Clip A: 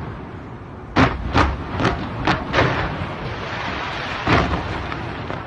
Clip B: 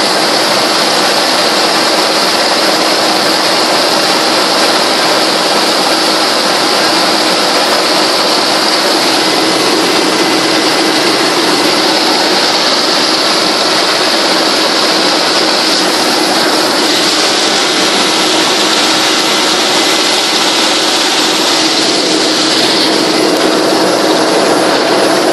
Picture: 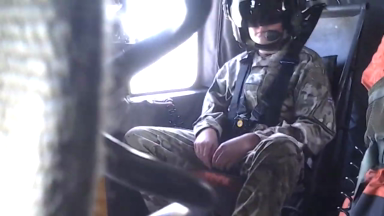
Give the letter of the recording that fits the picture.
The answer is B